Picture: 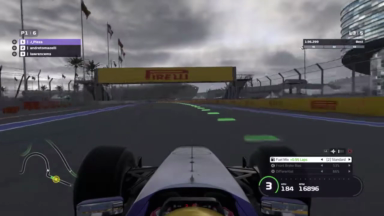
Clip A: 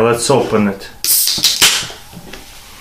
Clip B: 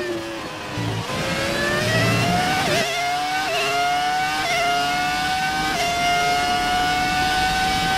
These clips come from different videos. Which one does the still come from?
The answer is B